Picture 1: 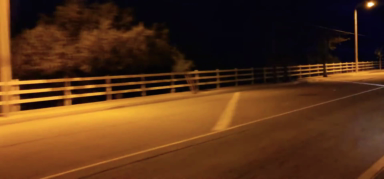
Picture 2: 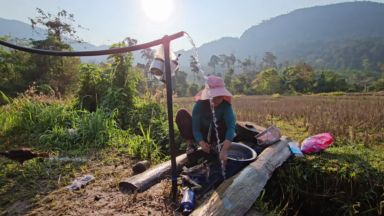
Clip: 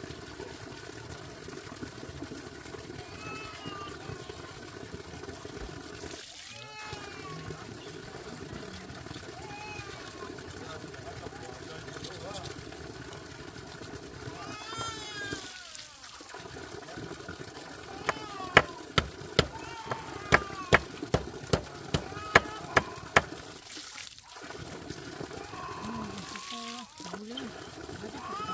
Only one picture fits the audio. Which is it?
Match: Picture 2